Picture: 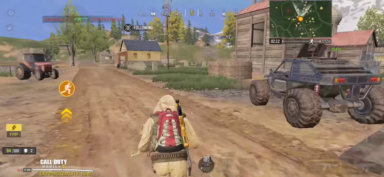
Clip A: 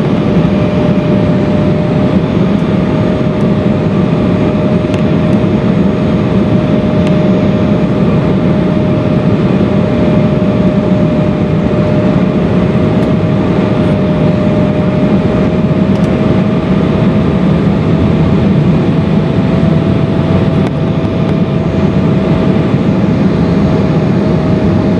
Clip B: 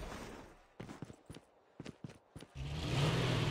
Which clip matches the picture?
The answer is B